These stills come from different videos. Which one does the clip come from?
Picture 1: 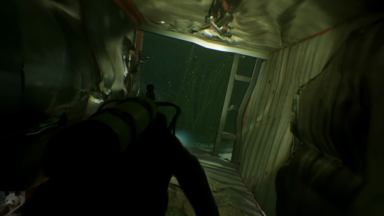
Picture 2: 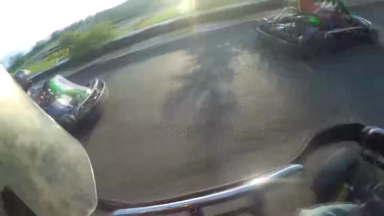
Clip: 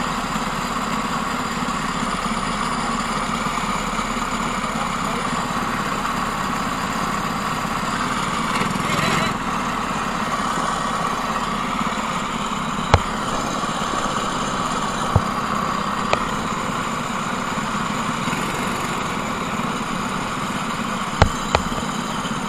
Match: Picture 2